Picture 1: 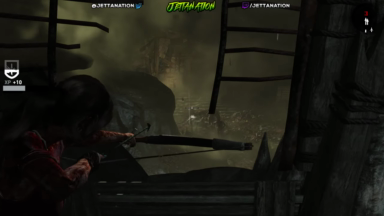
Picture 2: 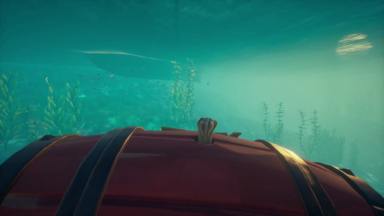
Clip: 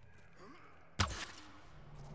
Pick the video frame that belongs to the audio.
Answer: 1